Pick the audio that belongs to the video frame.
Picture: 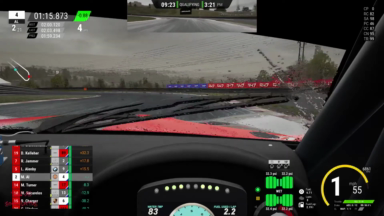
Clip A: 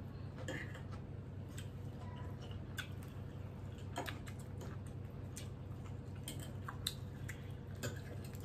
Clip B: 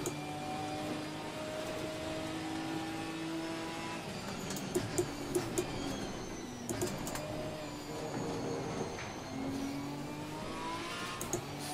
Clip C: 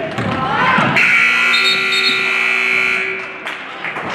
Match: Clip B